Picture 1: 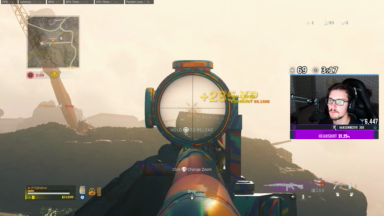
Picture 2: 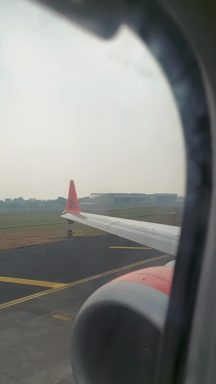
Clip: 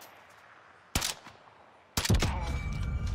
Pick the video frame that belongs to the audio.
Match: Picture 1